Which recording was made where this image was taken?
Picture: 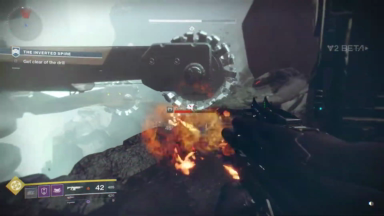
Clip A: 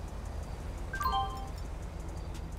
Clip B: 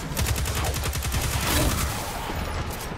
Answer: B